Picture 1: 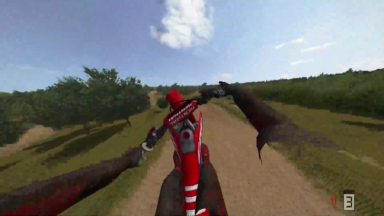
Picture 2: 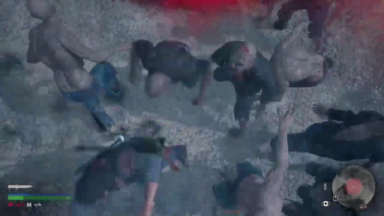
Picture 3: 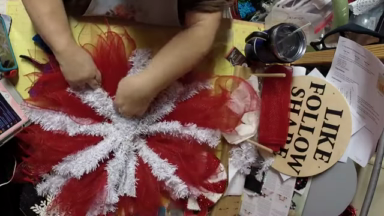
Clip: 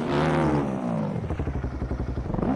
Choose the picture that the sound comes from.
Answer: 1